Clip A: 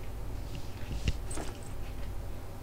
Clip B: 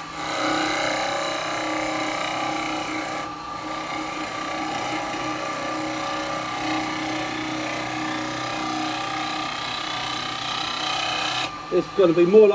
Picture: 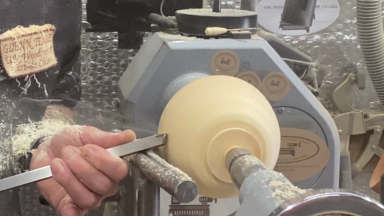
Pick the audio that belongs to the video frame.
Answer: B